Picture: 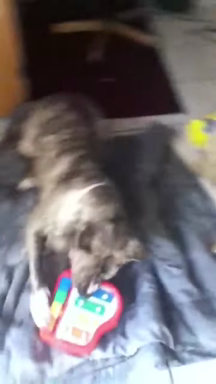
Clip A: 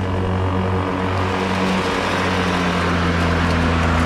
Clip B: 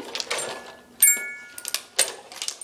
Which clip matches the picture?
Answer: B